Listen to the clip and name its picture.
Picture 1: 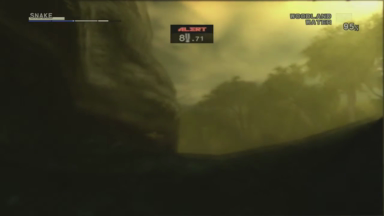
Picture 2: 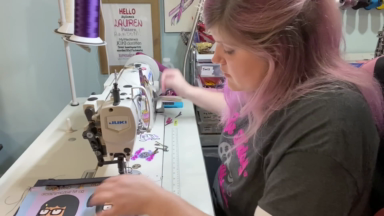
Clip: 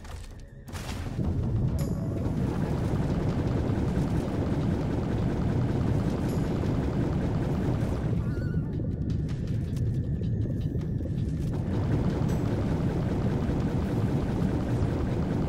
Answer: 1